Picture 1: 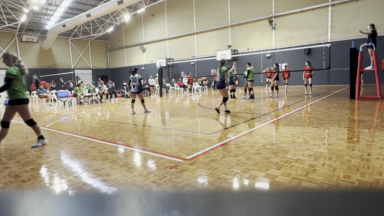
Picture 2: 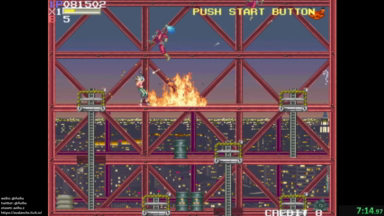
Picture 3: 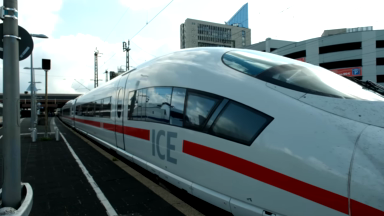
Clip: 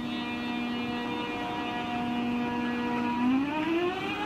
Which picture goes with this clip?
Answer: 3